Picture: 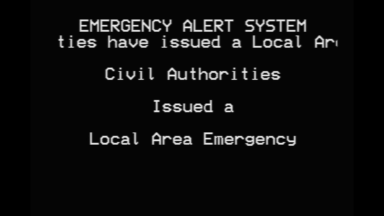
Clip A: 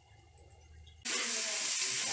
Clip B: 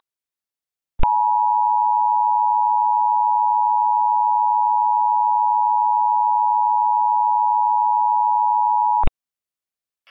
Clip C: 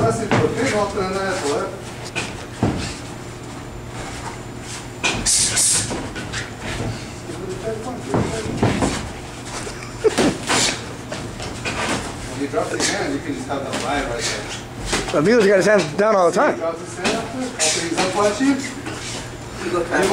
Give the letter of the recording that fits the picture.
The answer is B